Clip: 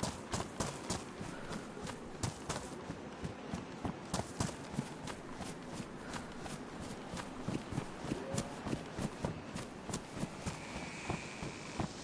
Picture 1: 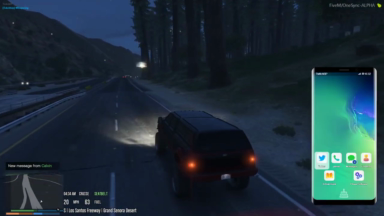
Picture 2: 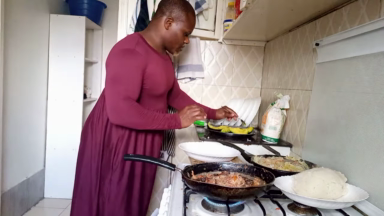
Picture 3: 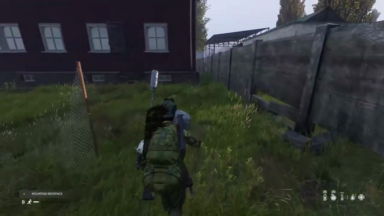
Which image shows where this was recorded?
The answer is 3